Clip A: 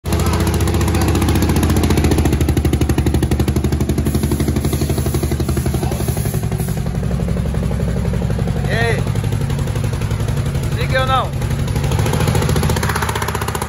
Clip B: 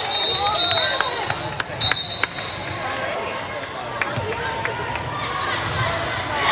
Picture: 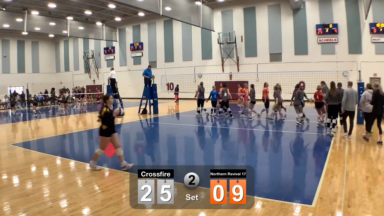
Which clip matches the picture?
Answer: B